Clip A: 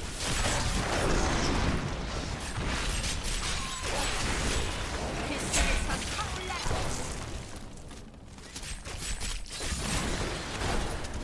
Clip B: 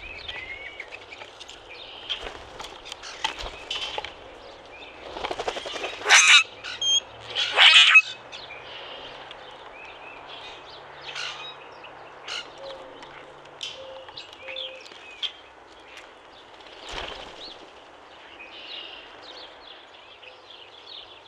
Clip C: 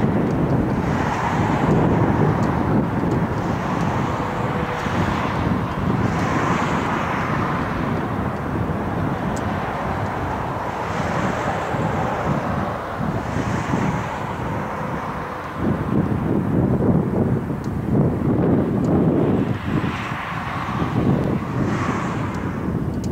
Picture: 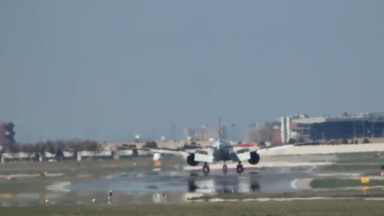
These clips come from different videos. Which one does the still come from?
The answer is C